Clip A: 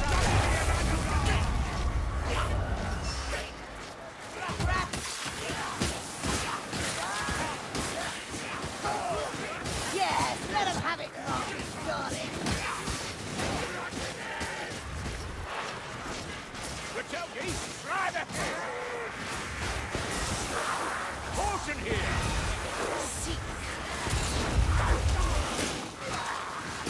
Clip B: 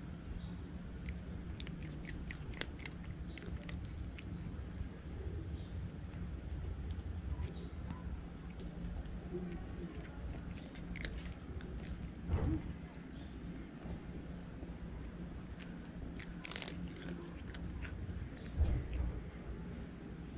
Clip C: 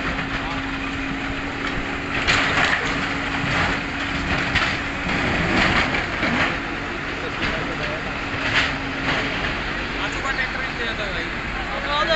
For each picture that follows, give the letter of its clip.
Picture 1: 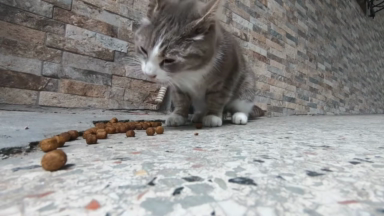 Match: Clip B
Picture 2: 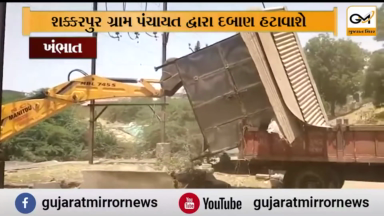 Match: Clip C